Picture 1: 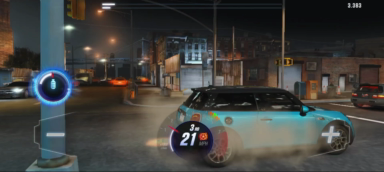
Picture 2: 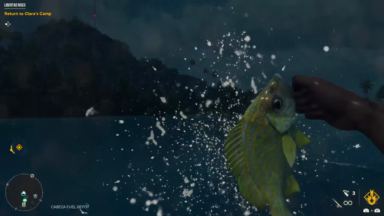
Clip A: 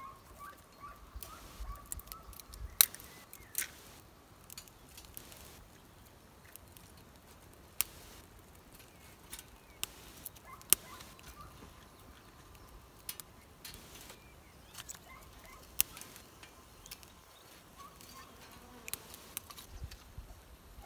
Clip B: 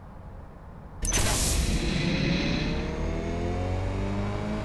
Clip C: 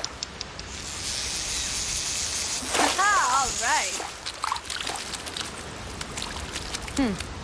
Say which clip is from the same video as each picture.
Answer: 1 B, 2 C